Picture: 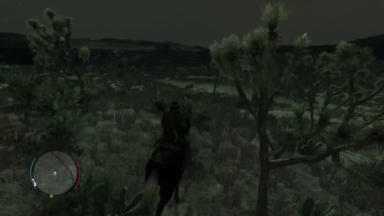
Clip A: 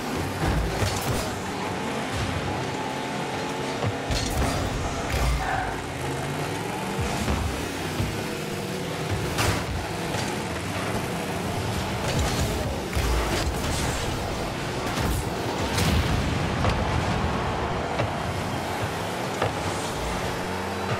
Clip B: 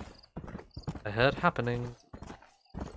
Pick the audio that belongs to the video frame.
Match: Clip B